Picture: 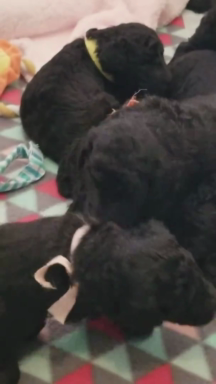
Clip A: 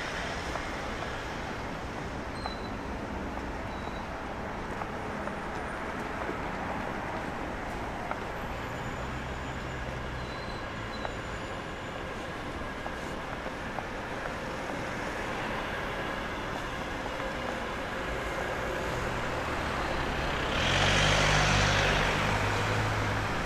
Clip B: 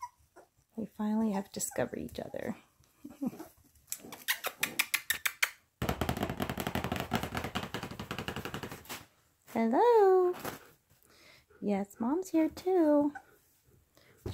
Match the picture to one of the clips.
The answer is B